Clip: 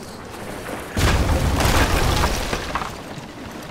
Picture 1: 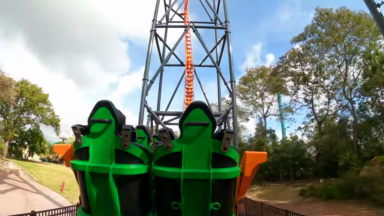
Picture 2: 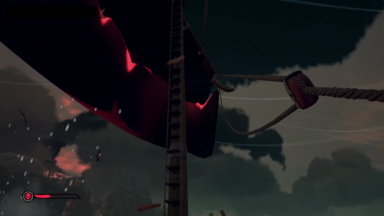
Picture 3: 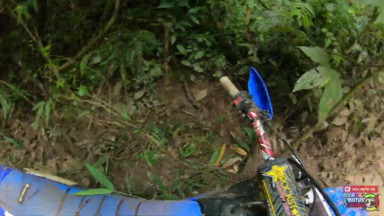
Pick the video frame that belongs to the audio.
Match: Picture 2